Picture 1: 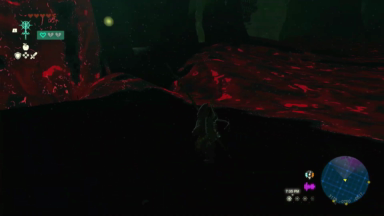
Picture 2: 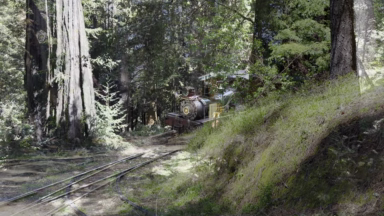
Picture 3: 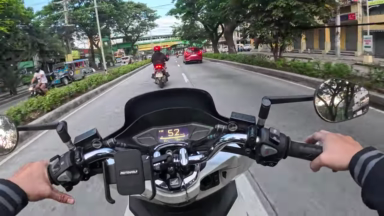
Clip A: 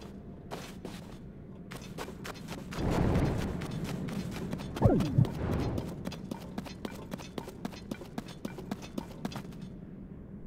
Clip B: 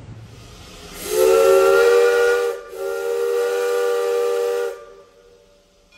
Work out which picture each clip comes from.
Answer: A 1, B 2